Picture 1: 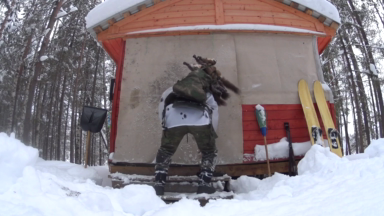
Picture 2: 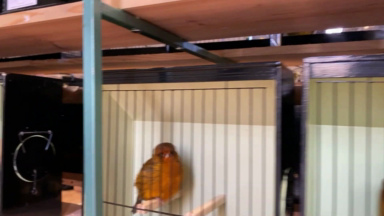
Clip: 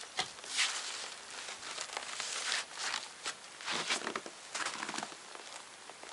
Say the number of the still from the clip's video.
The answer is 1